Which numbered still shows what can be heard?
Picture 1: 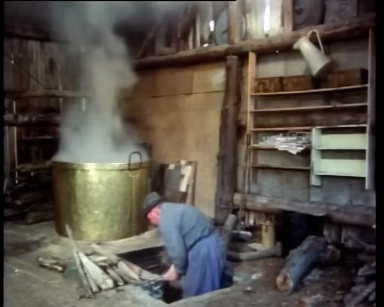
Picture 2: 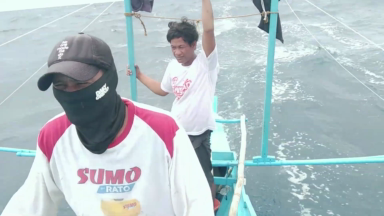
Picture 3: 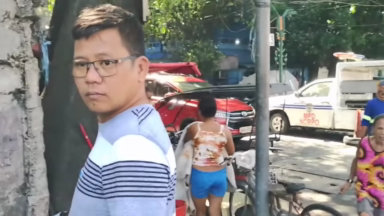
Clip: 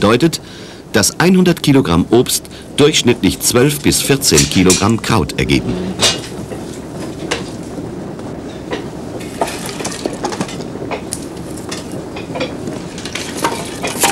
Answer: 1